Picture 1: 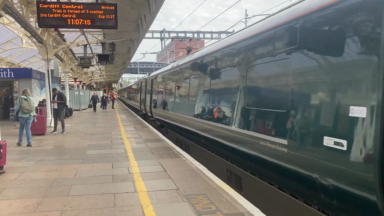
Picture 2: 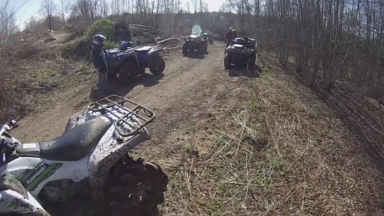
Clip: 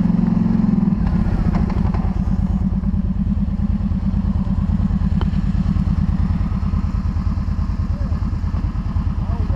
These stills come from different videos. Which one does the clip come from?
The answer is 2